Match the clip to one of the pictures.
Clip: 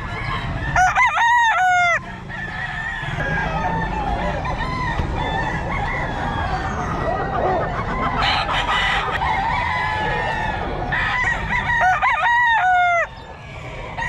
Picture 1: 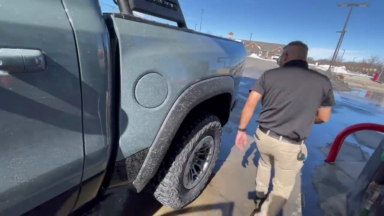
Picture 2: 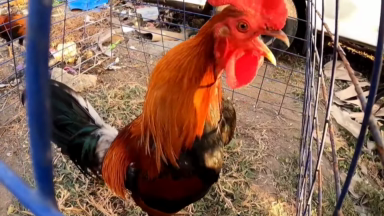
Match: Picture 2